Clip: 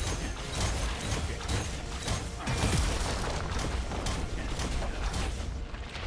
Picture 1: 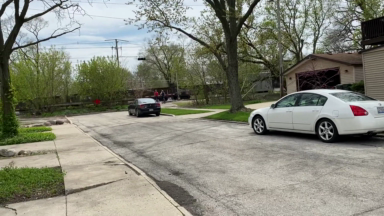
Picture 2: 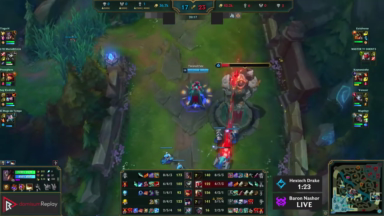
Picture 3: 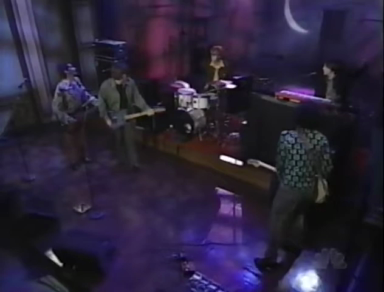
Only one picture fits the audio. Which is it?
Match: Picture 2